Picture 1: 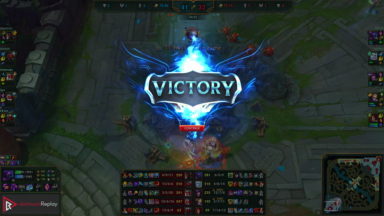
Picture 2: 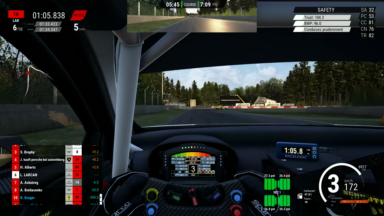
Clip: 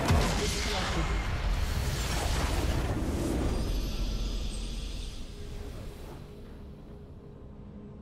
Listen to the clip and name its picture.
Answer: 1